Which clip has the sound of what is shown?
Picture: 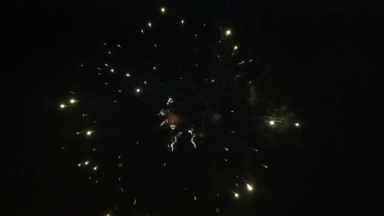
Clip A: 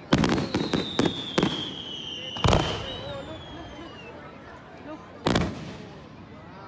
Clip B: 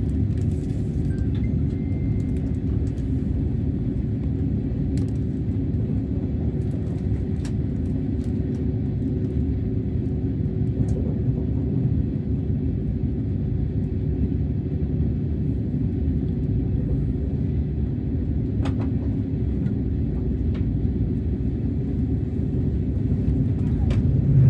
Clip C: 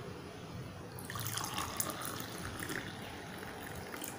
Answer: A